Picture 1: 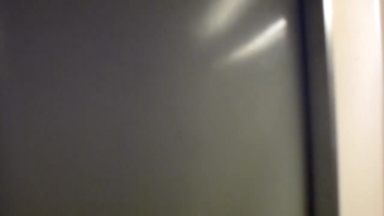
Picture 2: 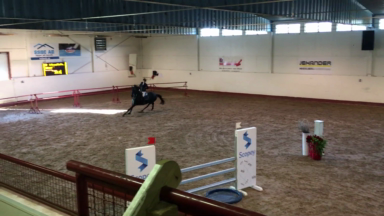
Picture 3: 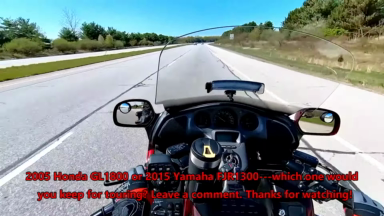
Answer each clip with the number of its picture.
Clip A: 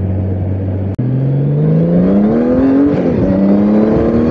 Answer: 3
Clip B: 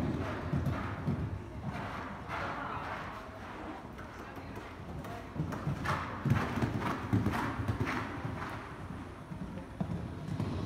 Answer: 2